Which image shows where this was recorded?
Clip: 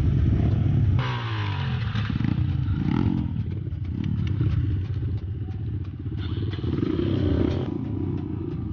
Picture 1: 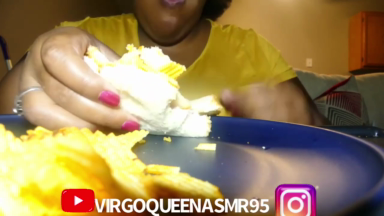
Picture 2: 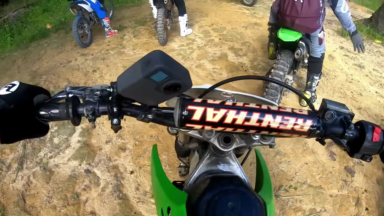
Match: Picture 2